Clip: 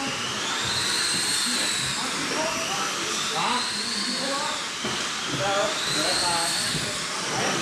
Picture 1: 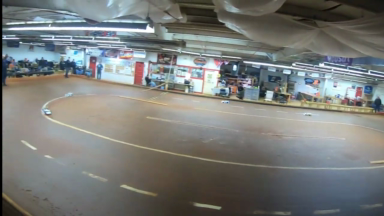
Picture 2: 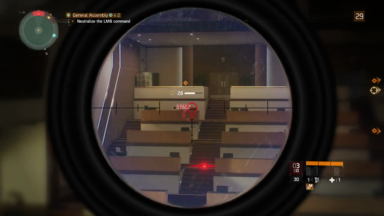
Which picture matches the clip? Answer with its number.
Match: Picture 1